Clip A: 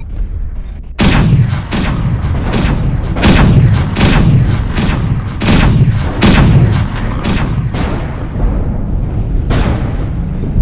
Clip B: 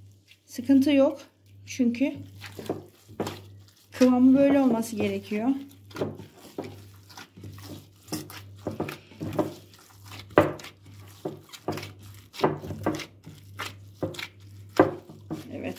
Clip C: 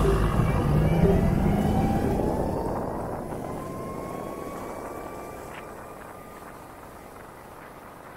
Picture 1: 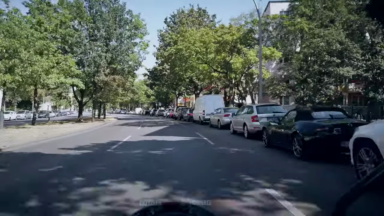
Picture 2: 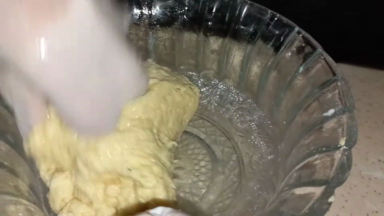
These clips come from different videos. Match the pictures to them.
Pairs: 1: C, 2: B